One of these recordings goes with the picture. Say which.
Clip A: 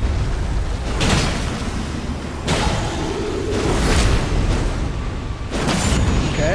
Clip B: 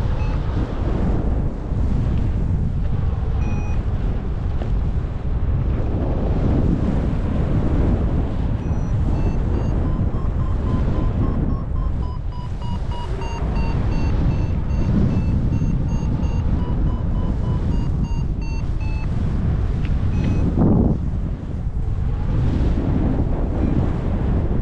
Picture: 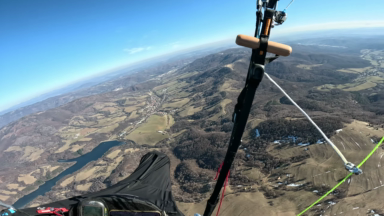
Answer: B